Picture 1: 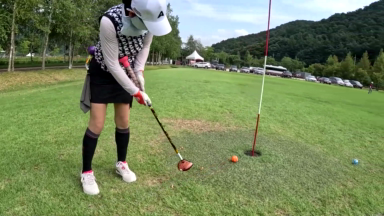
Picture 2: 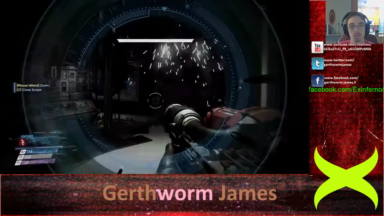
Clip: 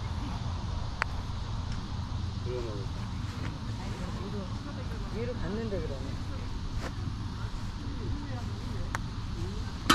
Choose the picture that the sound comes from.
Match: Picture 1